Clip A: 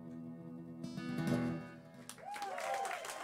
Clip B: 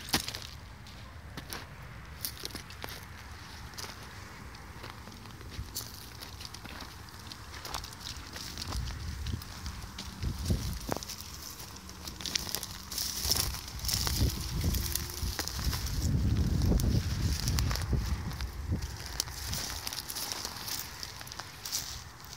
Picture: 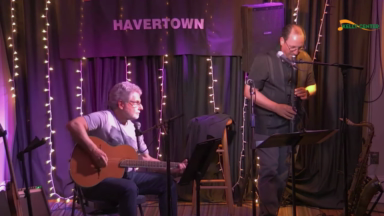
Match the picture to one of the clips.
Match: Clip A